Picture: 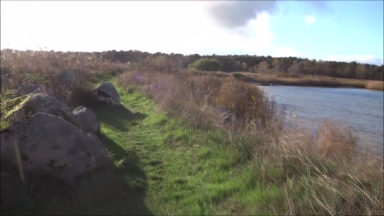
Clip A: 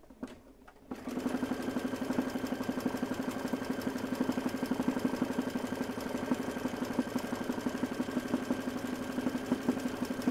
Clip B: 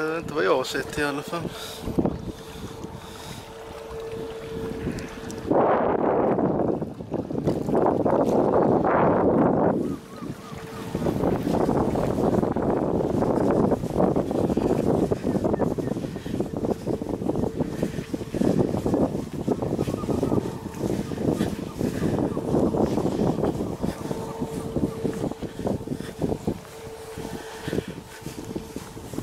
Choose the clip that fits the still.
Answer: B